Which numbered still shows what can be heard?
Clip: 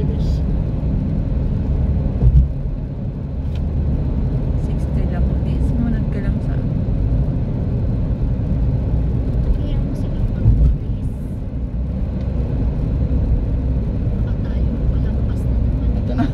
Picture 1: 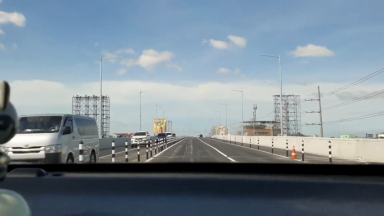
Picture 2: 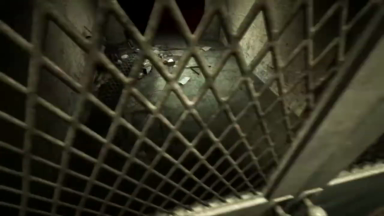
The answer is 1